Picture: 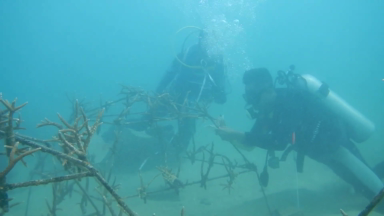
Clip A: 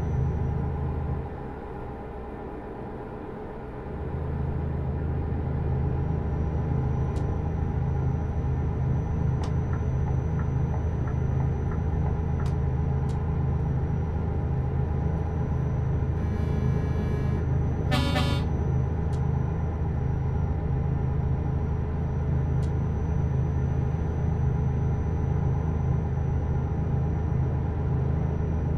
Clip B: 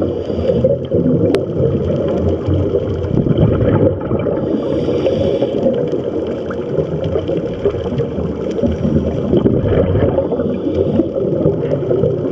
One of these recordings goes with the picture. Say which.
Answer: B